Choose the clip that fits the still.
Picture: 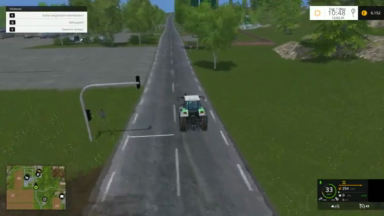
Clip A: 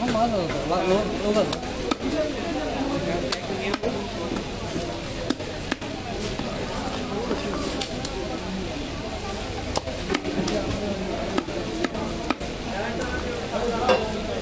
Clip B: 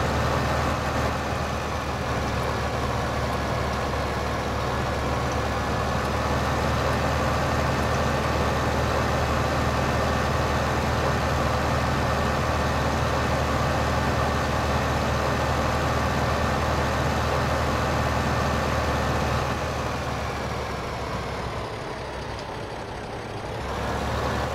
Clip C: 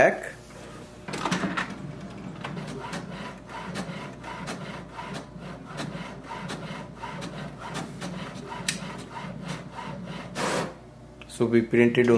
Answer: B